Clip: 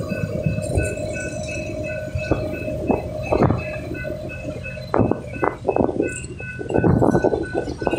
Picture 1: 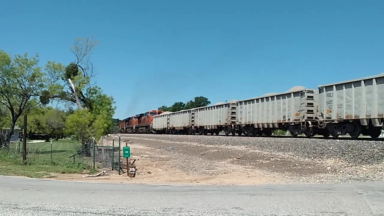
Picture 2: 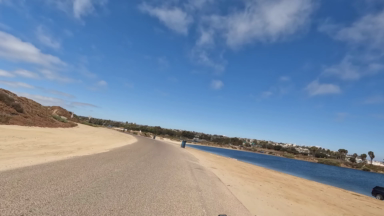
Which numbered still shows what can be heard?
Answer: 1